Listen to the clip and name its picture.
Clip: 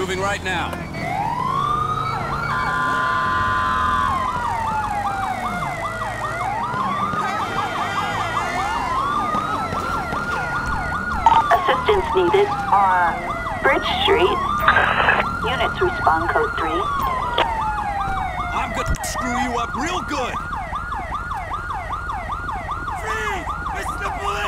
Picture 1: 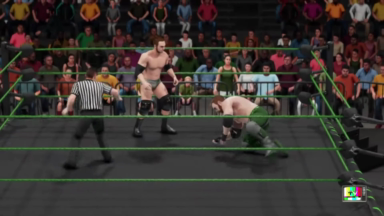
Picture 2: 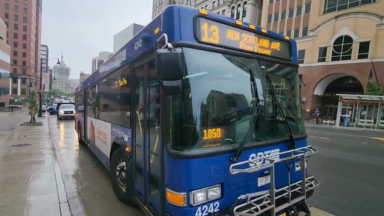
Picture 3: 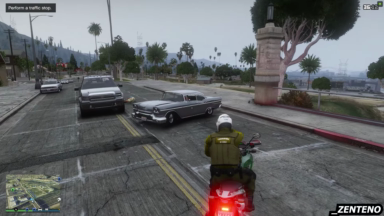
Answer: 3